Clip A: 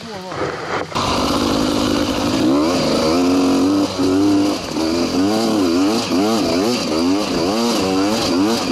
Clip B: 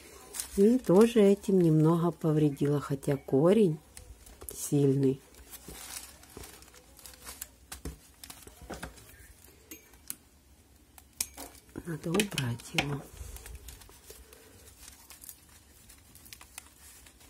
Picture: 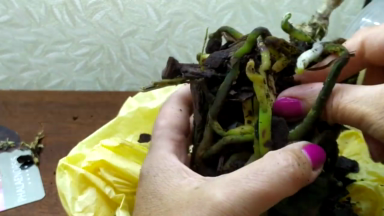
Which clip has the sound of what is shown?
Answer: B